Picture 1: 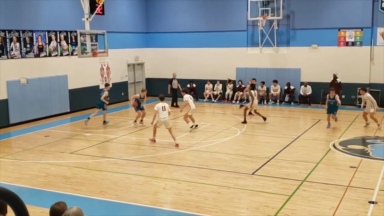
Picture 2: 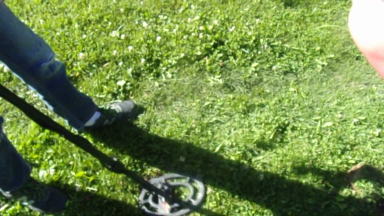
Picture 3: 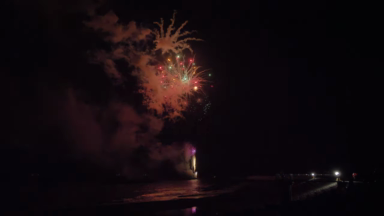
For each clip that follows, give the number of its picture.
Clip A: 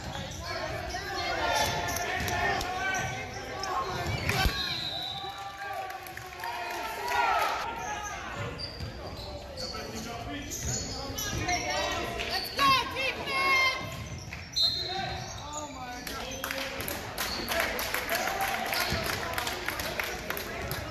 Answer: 1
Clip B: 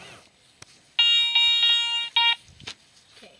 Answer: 2